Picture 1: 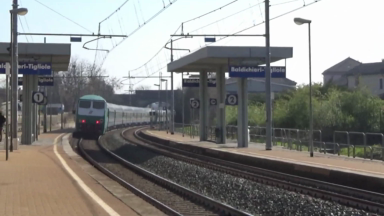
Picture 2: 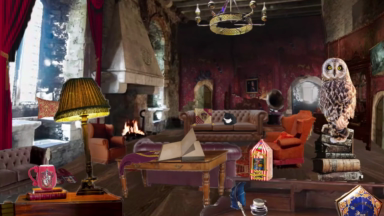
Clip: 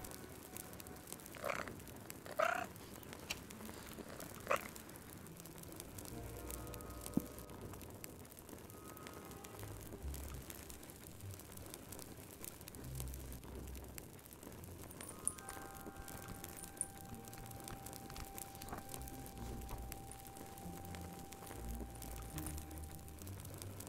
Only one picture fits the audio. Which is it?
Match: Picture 2